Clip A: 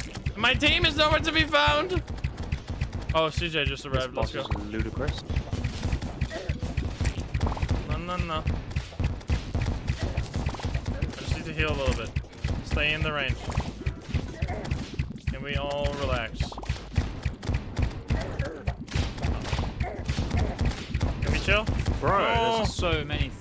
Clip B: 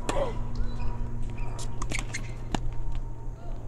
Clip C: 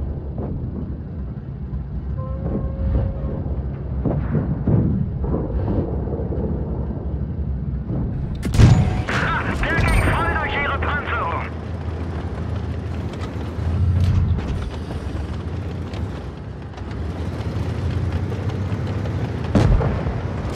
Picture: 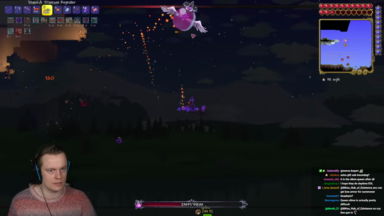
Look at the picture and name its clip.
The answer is A